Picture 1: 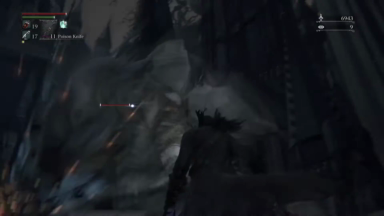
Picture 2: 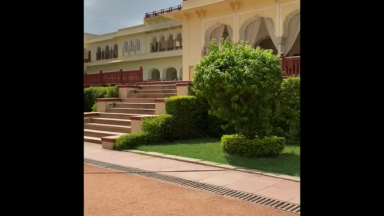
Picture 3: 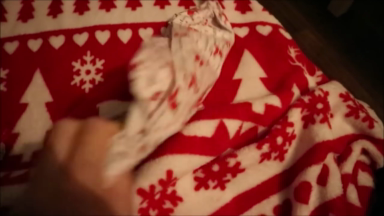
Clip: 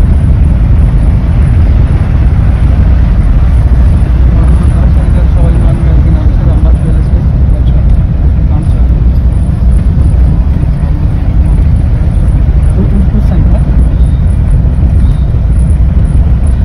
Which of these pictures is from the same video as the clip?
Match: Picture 2